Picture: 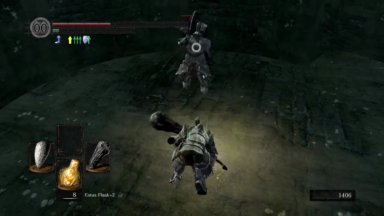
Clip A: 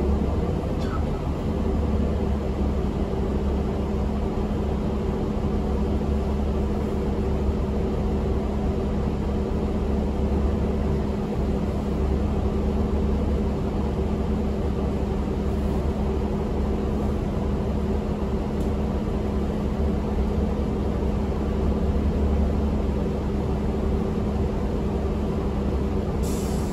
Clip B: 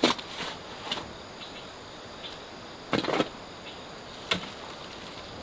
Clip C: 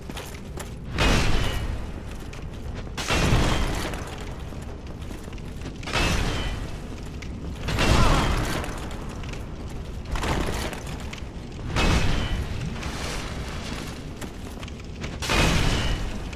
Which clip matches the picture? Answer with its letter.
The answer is C